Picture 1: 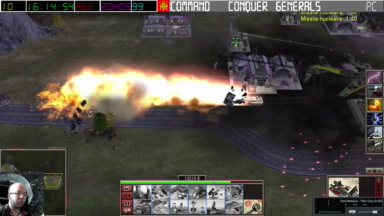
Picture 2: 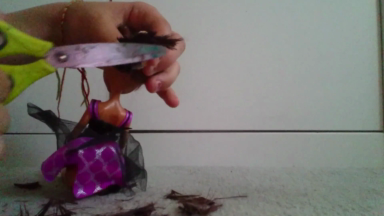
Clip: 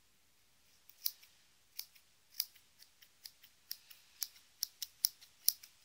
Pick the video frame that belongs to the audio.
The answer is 2